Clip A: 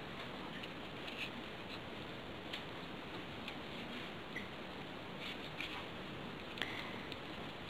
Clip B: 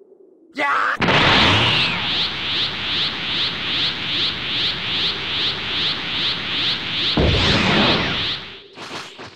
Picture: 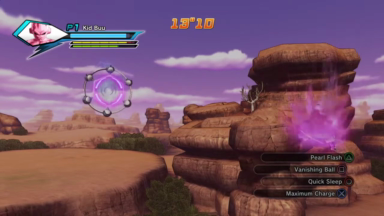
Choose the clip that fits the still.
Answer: B